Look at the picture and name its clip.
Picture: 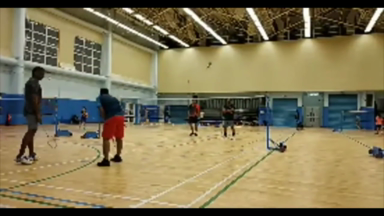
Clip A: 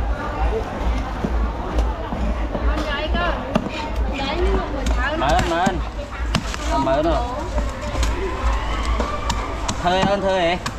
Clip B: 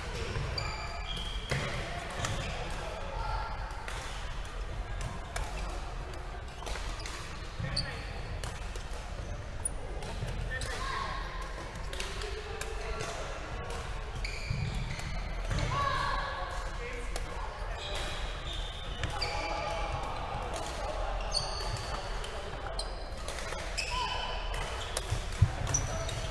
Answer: B